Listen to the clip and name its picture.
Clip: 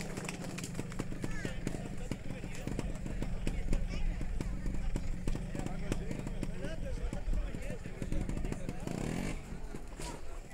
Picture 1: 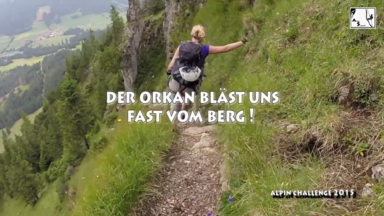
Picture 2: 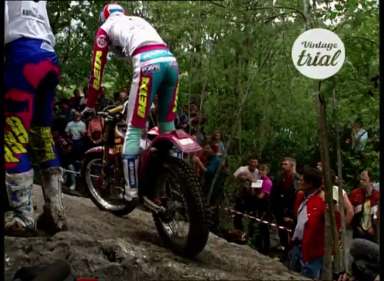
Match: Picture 2